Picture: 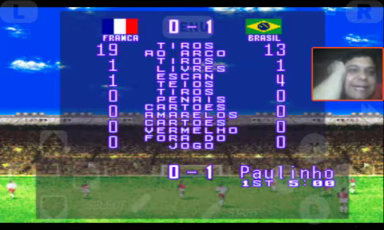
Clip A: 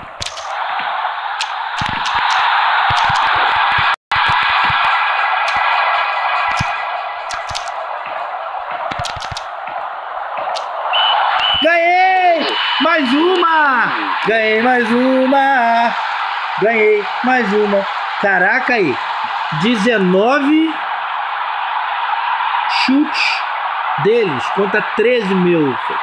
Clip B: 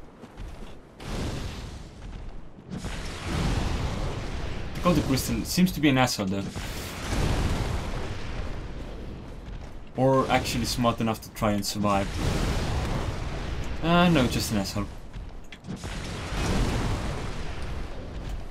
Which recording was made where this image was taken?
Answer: A